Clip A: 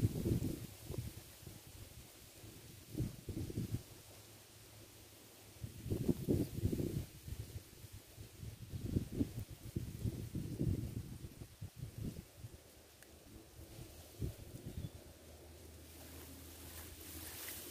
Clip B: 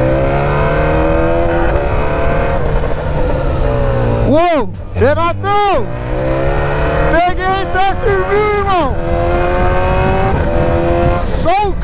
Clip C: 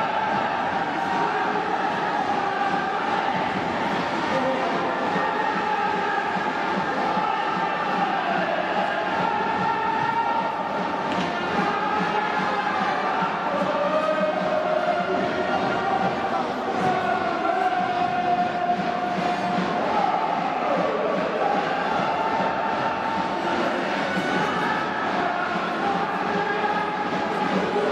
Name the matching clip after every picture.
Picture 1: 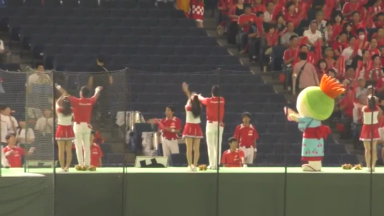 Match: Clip C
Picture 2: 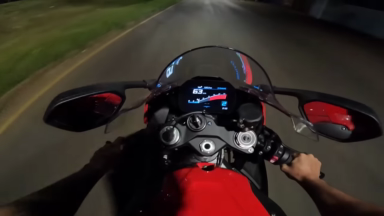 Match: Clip B